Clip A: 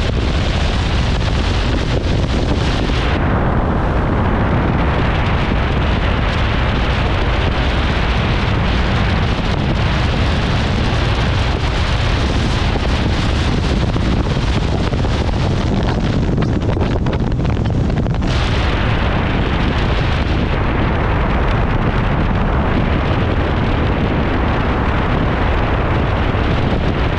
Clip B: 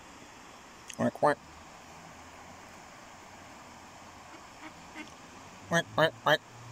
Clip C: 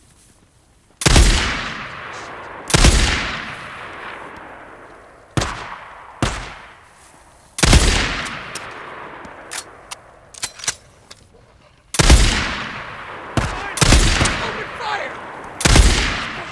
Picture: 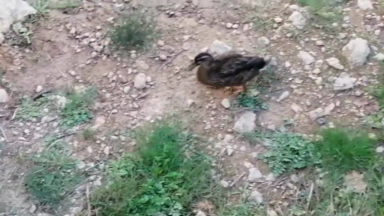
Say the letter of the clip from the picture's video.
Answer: B